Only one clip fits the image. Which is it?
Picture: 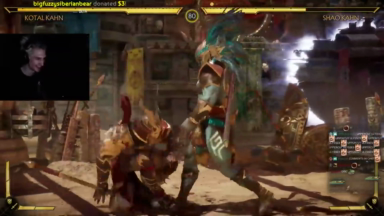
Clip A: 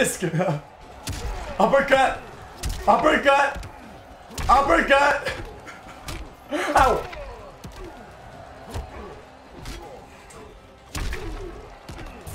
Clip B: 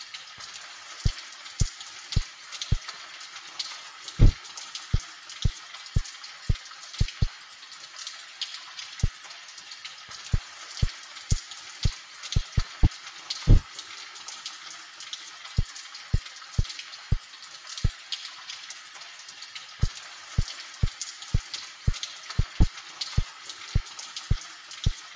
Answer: A